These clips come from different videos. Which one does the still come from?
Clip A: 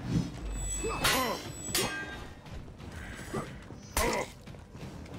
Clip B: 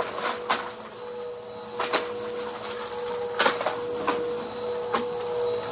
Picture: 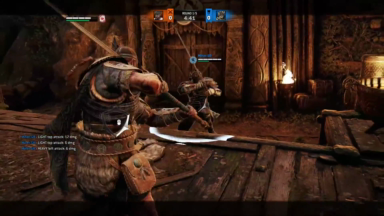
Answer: A